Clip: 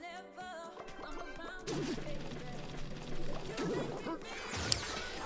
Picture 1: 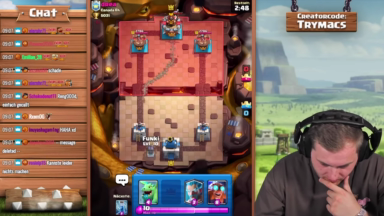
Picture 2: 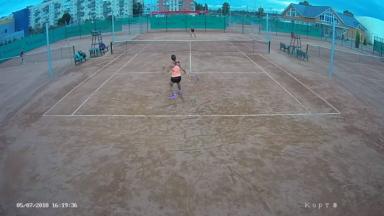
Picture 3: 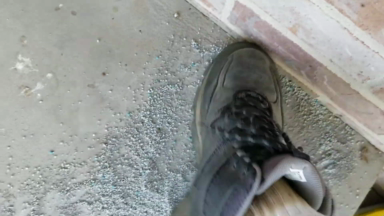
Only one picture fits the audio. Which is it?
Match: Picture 1